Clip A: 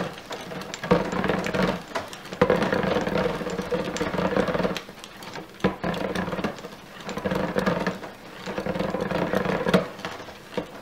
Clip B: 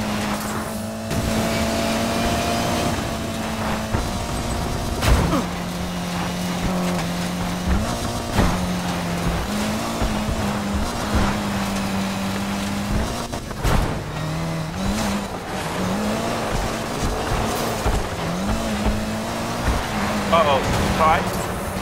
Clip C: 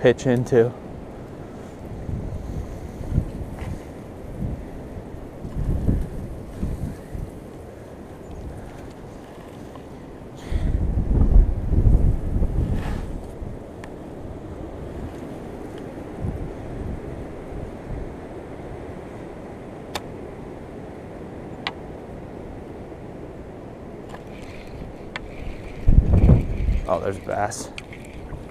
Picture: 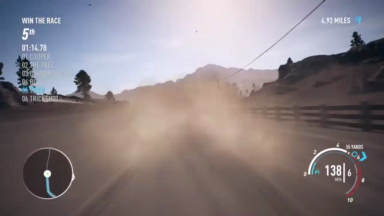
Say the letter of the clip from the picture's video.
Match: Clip B